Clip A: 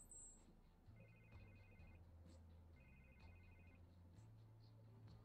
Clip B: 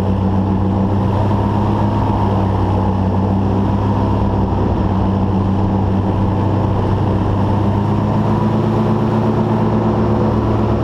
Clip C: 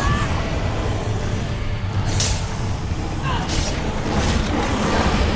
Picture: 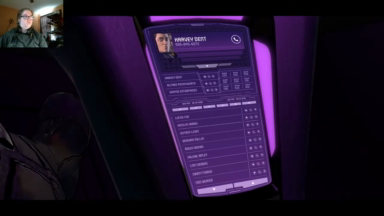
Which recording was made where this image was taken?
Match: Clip A